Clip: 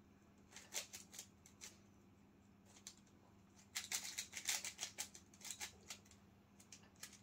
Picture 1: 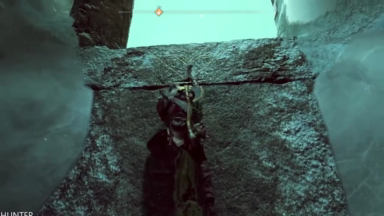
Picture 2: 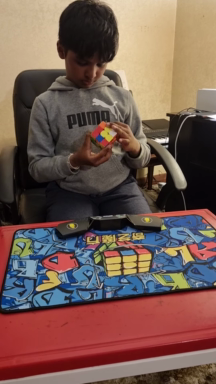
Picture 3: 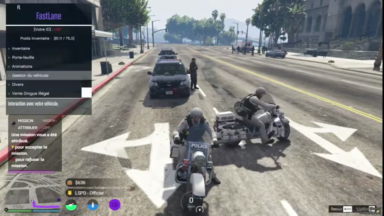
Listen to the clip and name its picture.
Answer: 2